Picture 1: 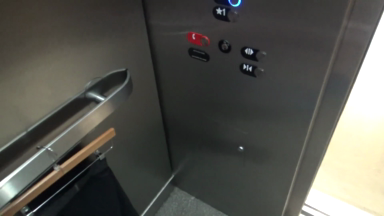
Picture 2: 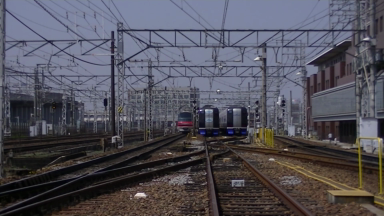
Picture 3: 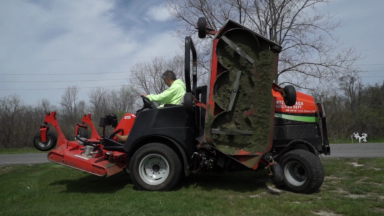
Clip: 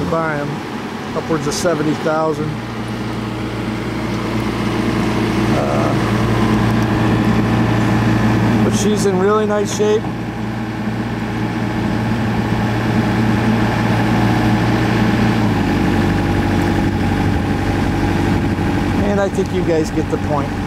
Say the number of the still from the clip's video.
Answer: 3